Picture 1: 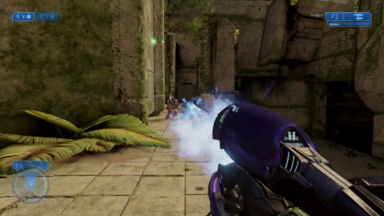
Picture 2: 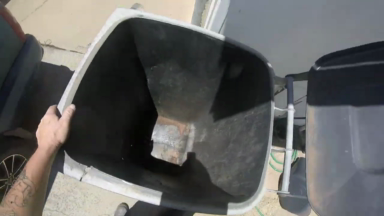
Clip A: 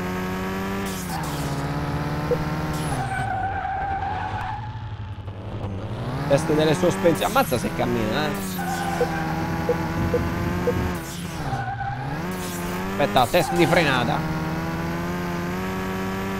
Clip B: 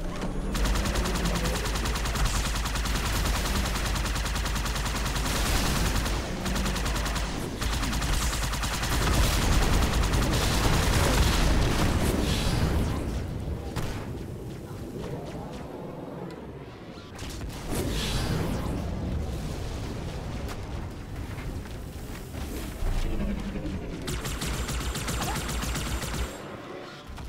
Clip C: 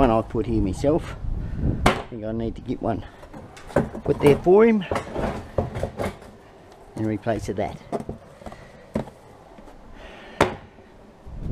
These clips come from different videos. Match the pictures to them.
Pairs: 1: B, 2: C